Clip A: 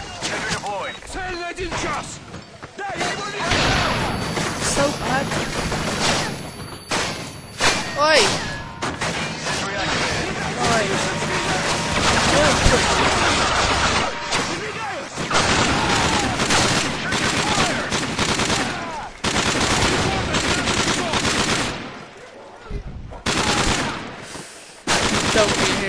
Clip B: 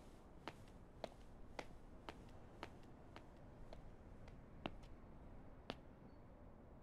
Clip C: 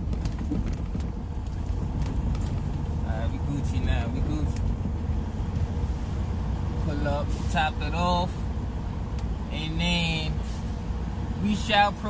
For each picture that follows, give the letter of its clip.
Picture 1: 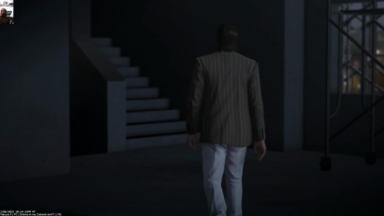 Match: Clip B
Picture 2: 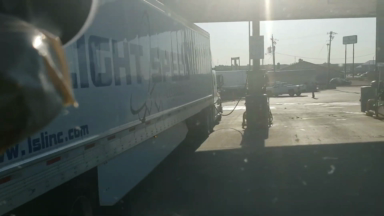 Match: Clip C